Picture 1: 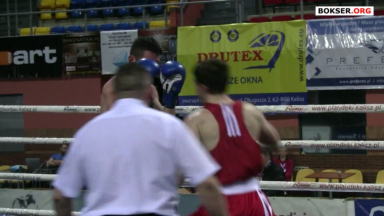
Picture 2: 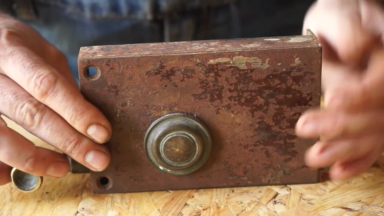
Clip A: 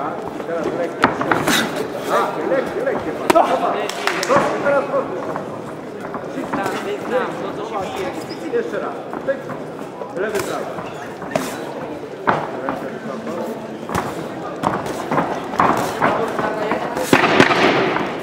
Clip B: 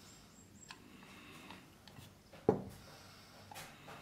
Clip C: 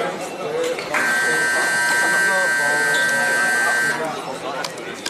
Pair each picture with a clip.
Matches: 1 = A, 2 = B